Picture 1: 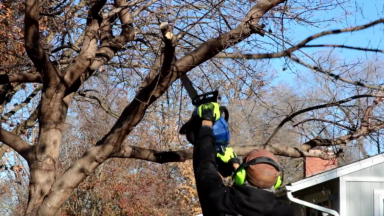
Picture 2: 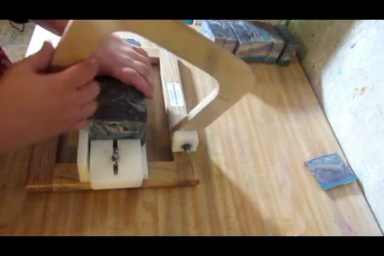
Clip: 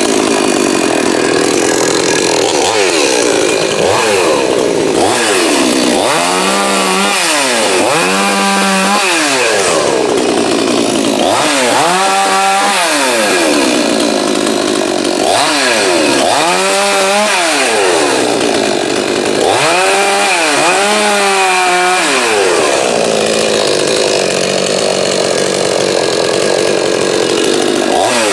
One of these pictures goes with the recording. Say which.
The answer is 1